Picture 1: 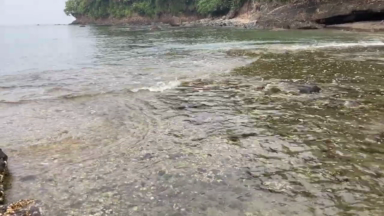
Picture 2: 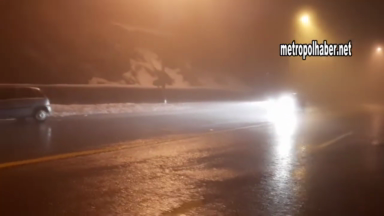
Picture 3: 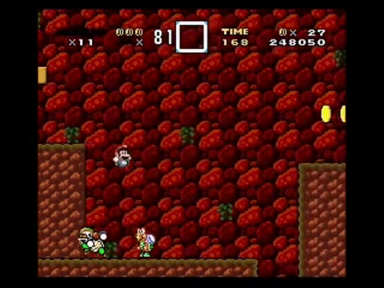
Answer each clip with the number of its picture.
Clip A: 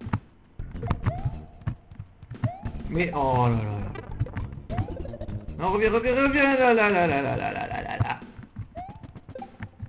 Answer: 3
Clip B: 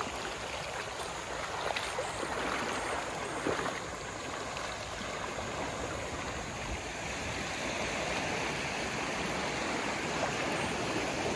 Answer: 1